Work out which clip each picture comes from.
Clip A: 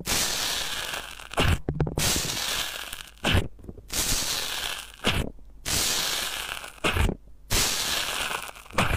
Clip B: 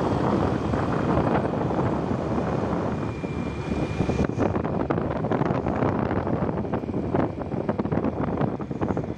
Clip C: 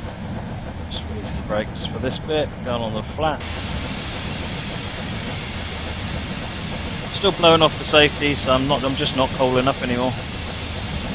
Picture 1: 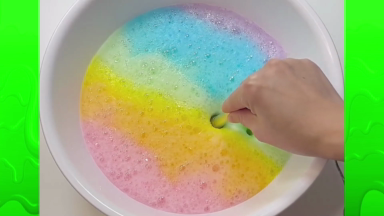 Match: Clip A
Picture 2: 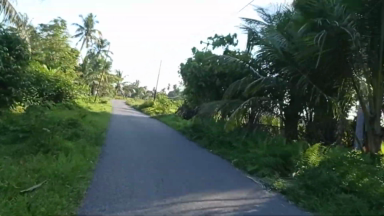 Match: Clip B